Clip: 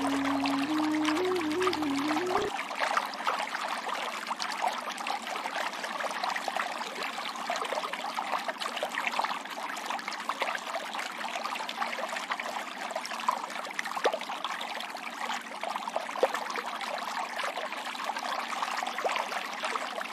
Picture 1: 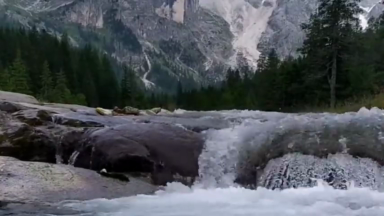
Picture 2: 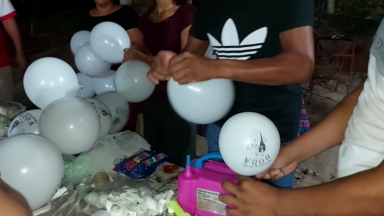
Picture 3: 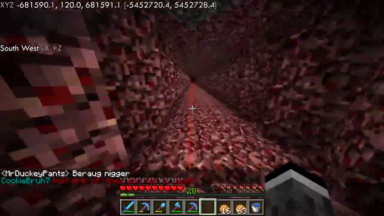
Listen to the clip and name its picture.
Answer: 1